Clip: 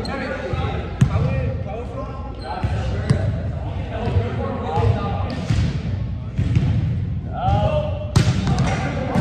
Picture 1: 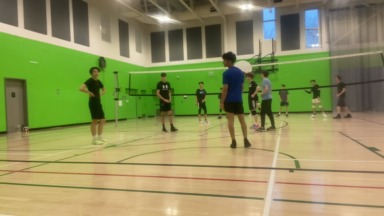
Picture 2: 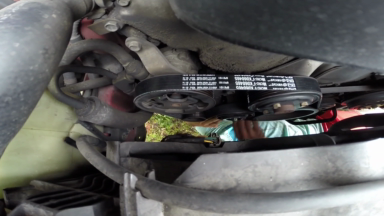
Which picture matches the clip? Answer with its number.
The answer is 1